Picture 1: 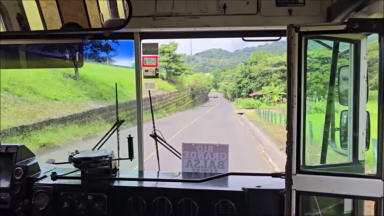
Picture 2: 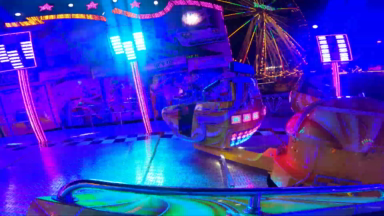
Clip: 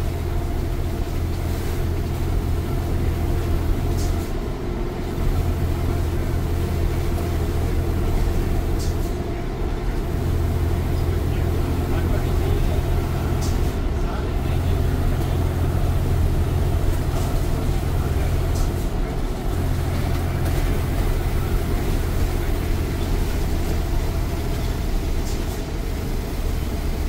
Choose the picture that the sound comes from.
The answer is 1